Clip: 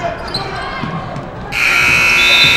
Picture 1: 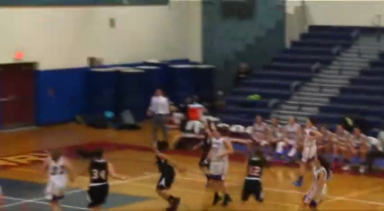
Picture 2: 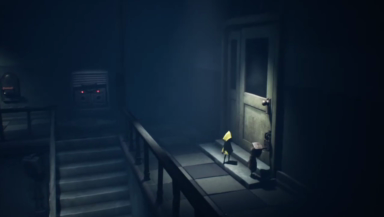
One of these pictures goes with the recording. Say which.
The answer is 1